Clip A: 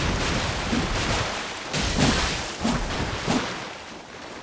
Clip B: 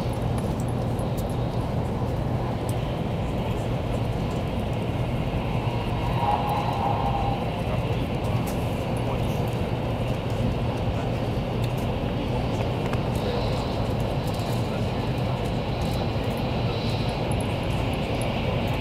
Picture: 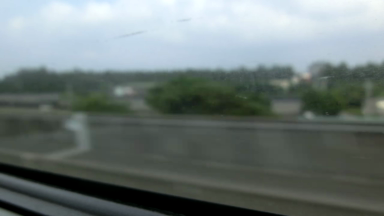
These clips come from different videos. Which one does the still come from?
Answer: B